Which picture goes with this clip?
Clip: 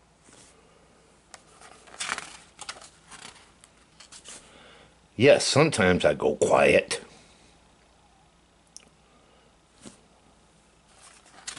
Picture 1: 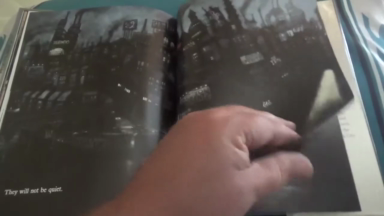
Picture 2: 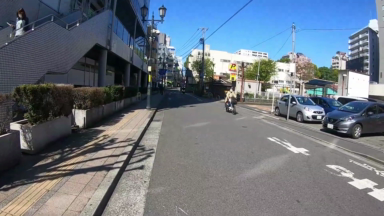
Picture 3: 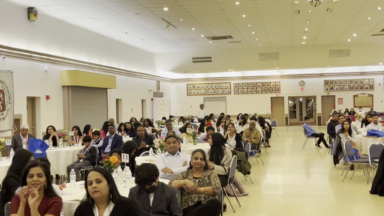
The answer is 1